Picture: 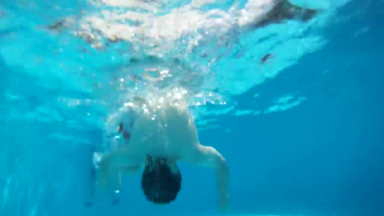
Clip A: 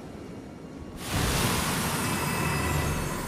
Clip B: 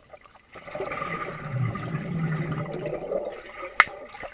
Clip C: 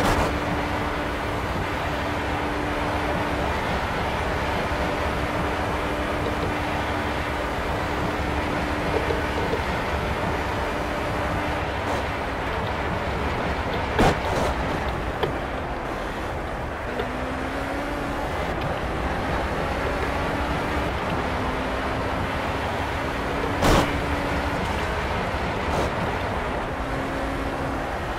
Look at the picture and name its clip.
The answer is B